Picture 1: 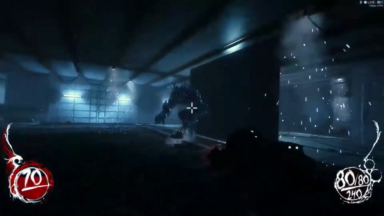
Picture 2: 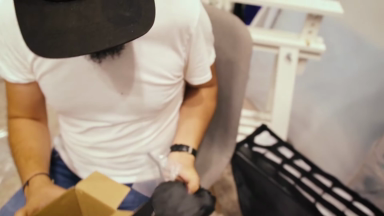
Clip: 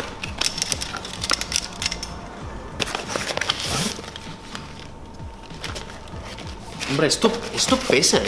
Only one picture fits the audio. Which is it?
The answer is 2